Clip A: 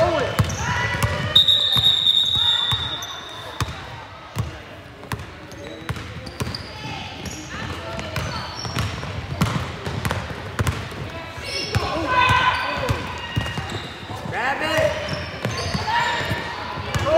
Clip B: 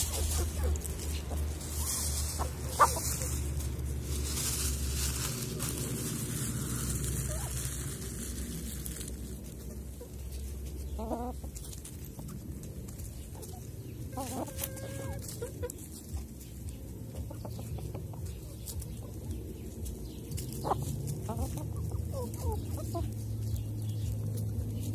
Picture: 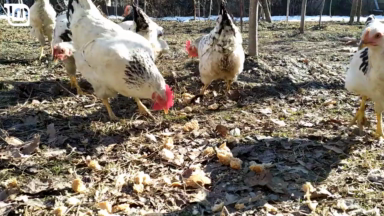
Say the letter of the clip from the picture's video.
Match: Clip B